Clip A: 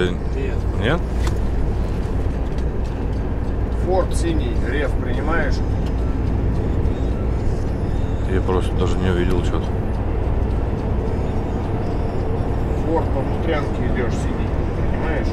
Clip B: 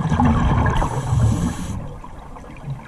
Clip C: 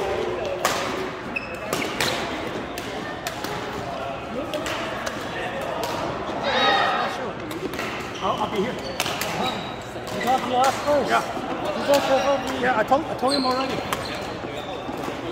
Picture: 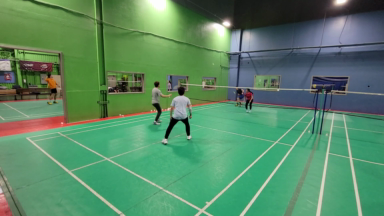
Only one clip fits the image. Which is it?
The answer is C